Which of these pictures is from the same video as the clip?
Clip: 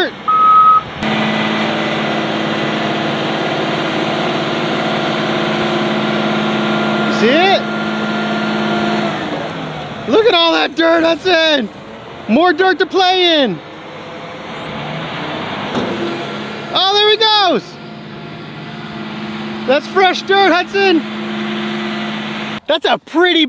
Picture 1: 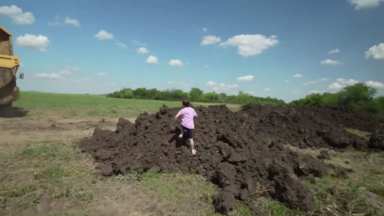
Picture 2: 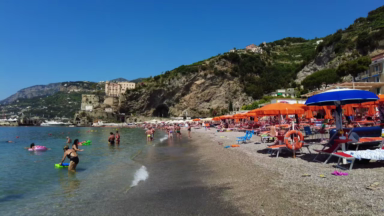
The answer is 1